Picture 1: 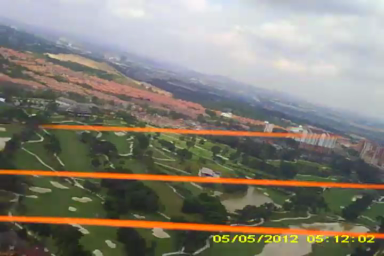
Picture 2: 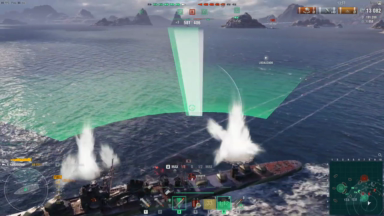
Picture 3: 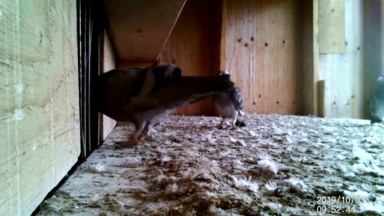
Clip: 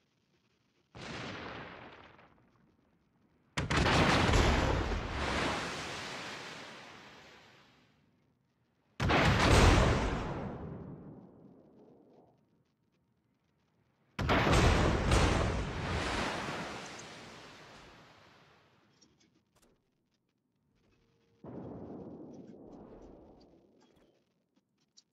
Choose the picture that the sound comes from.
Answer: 2